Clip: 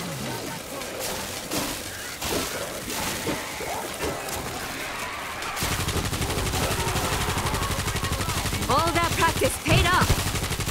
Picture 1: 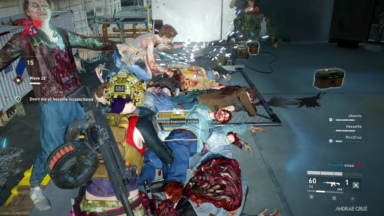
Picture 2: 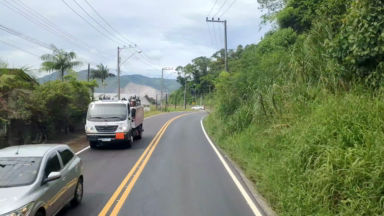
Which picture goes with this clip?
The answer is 1